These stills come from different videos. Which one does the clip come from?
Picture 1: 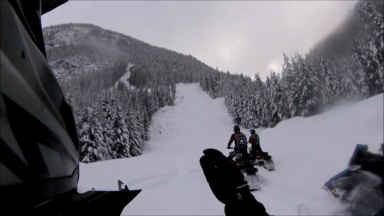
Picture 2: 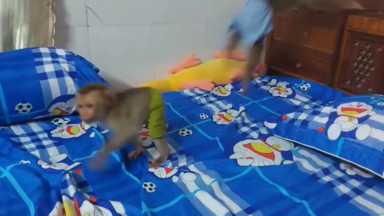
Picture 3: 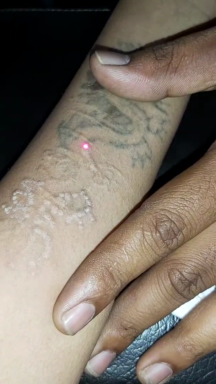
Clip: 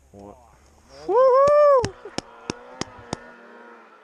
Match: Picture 1